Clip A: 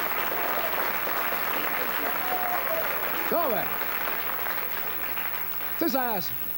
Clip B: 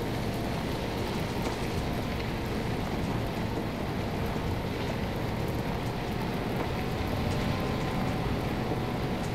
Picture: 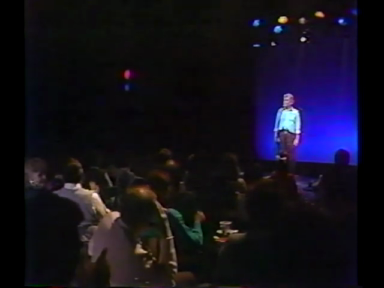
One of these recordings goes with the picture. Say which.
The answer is A